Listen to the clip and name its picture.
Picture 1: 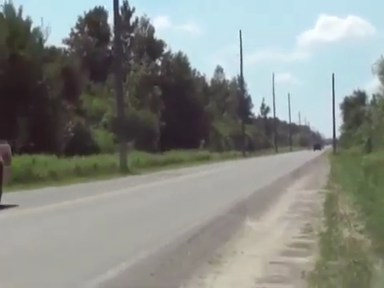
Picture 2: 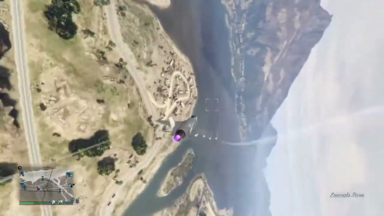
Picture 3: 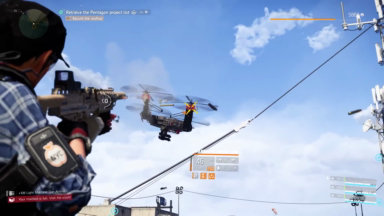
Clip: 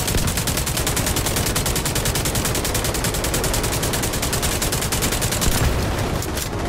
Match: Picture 3